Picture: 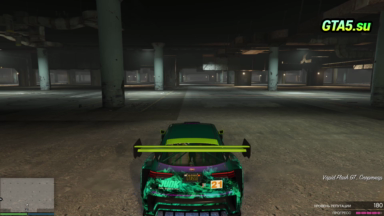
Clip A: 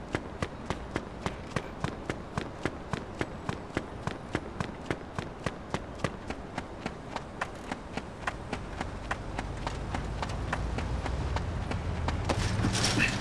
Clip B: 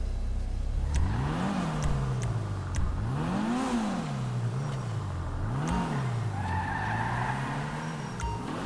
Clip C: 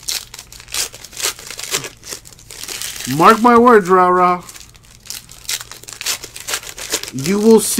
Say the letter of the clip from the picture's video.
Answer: B